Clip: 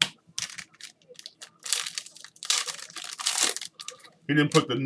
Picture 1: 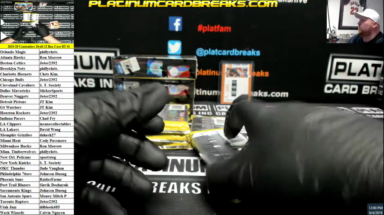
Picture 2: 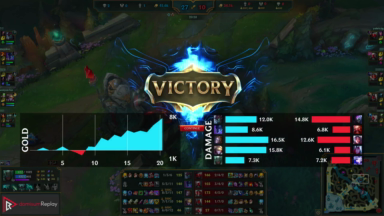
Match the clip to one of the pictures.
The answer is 1